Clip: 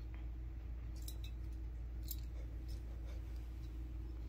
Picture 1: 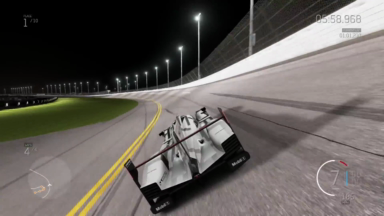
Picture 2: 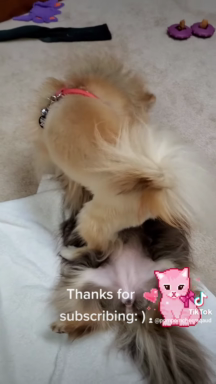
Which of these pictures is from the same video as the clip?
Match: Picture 2